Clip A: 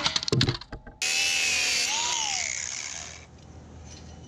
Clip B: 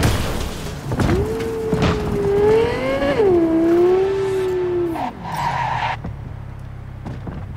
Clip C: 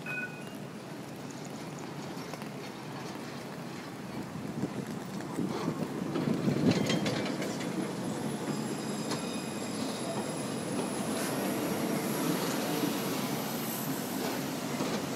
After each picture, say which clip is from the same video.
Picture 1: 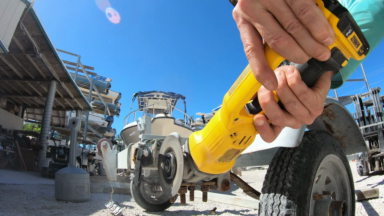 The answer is A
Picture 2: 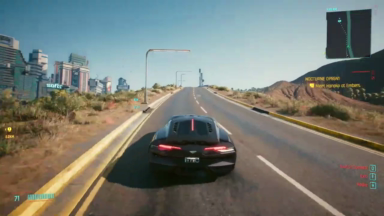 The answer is B